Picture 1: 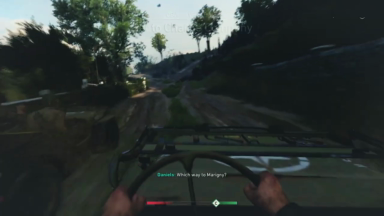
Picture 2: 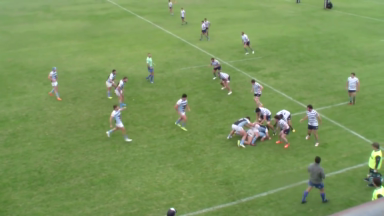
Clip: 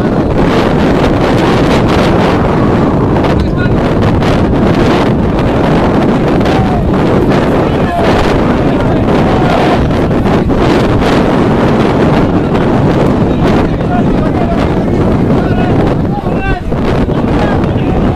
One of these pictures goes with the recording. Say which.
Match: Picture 2